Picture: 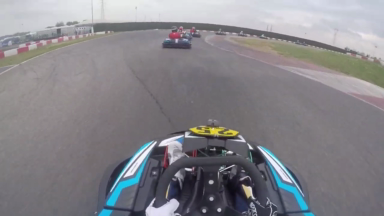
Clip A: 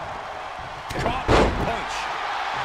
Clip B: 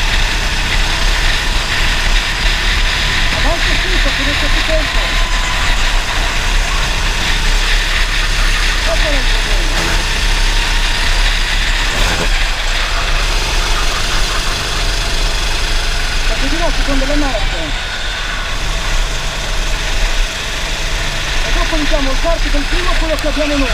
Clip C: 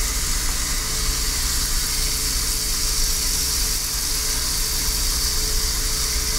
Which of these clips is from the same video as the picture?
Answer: B